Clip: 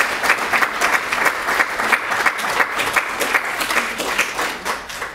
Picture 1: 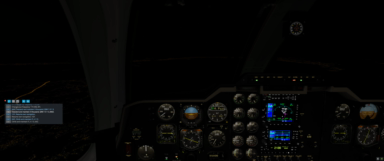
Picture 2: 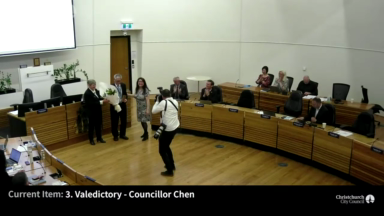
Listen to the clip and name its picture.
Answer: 2